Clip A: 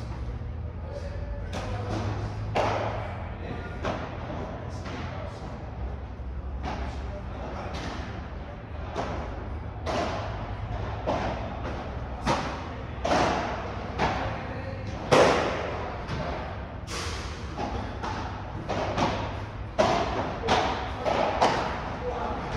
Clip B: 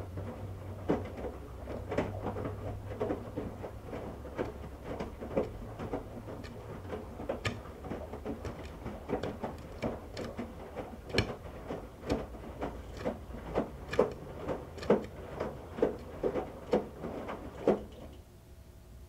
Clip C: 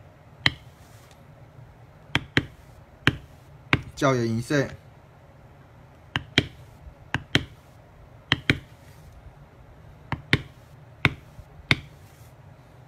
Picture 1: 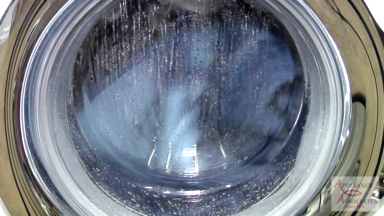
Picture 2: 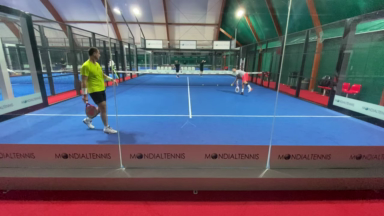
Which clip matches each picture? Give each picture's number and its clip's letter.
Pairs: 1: B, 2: A